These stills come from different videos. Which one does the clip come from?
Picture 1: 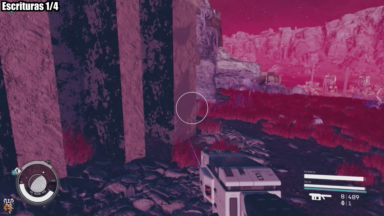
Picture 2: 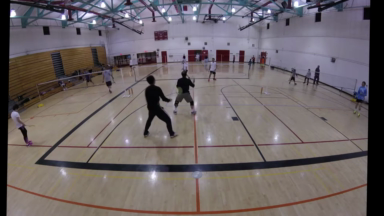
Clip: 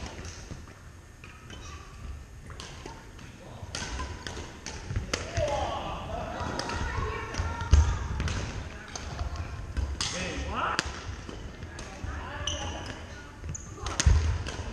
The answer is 2